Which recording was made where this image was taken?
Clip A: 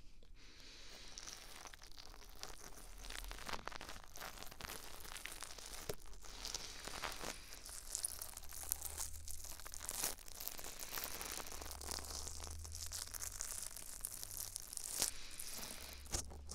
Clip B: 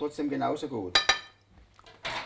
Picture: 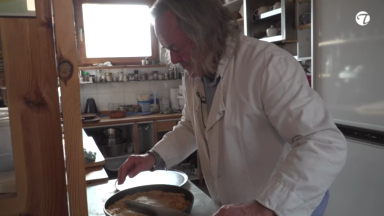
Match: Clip B